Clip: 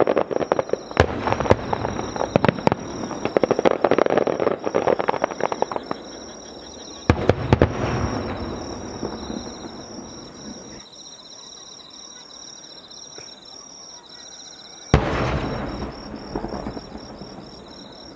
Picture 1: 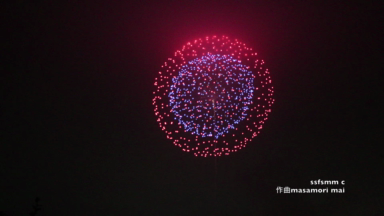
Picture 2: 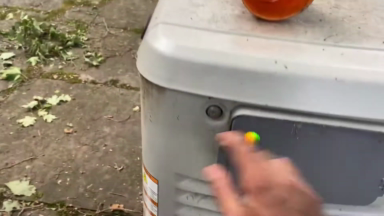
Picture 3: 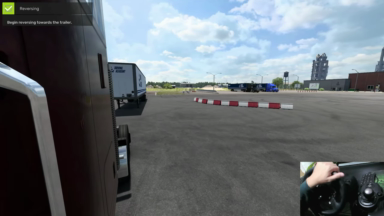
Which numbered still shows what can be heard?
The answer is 1